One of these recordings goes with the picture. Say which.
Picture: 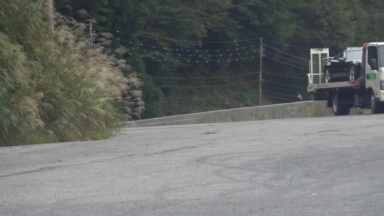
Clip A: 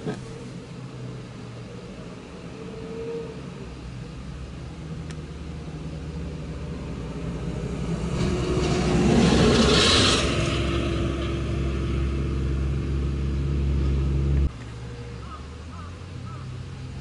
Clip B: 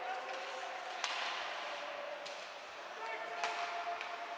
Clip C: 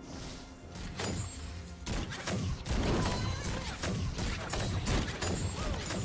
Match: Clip A